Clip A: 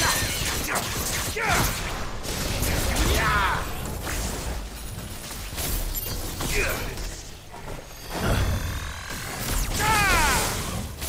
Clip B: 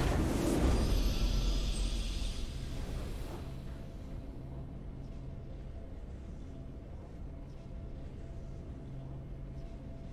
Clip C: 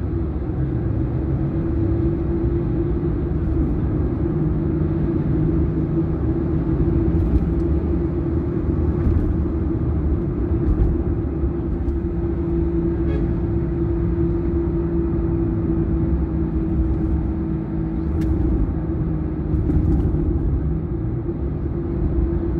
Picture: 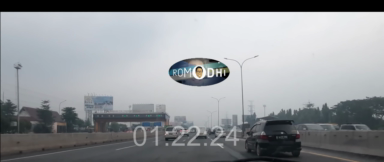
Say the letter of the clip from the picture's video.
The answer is C